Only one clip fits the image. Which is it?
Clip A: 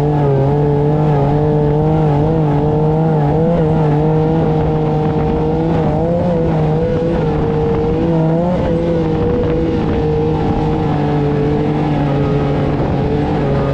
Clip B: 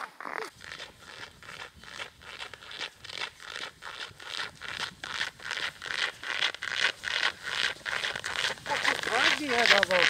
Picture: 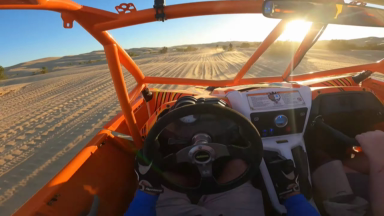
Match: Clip A